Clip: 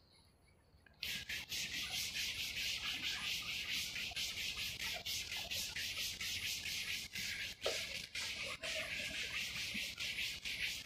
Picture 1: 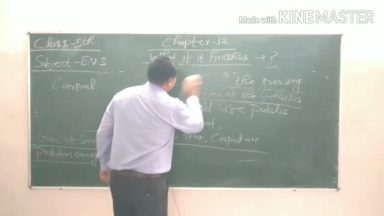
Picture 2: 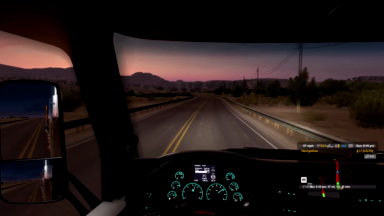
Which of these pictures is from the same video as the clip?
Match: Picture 1